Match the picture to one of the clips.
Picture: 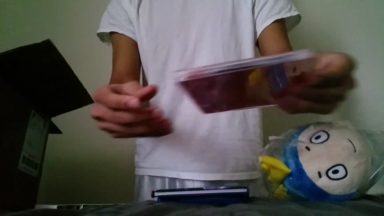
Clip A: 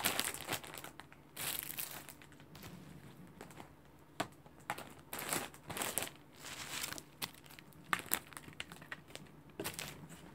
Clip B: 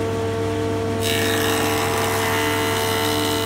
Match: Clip A